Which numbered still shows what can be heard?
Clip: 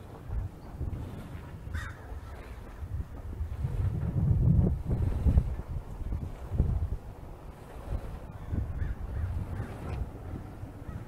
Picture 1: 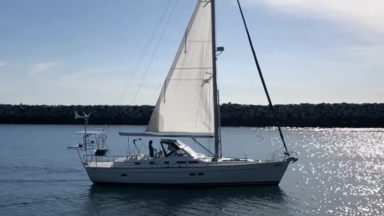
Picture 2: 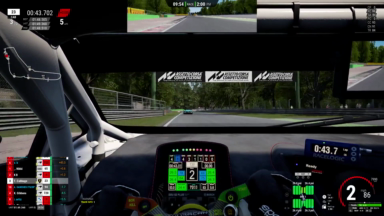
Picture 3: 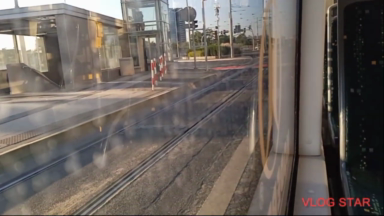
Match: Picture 1